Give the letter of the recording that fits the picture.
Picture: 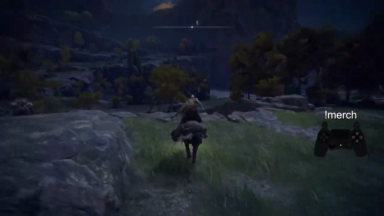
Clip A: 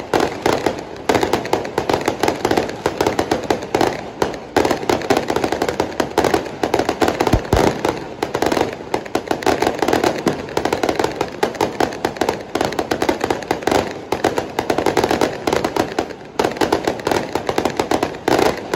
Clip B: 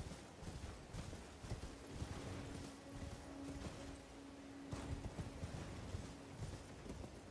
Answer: B